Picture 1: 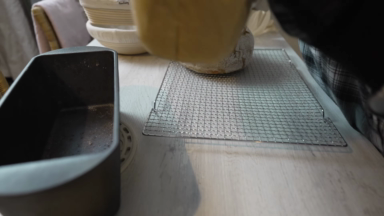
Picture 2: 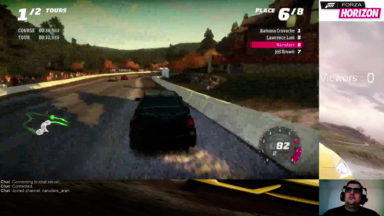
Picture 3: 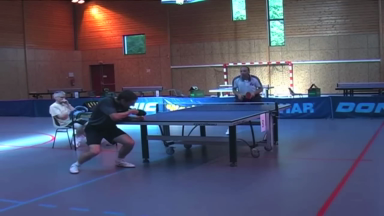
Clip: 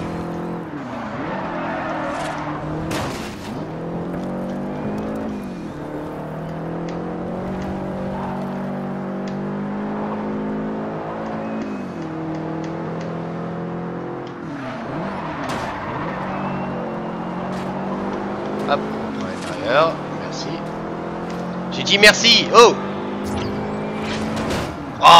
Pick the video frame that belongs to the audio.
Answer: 2